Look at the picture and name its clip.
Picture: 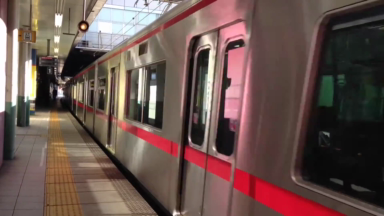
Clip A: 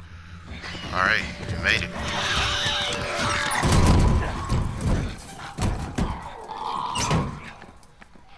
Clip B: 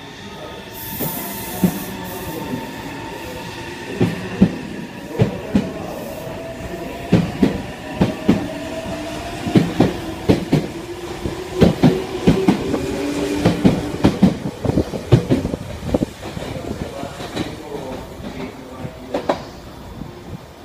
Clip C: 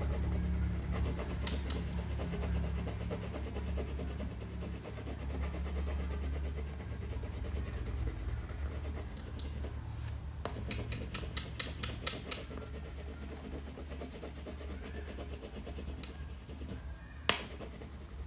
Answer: B